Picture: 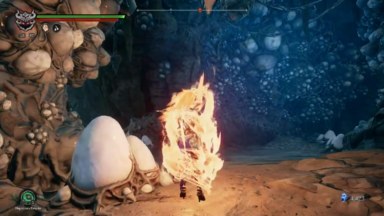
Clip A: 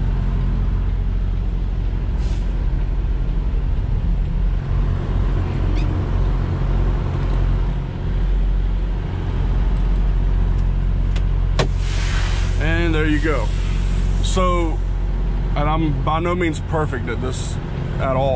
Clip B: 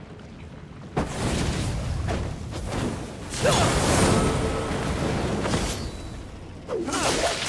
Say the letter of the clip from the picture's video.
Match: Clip B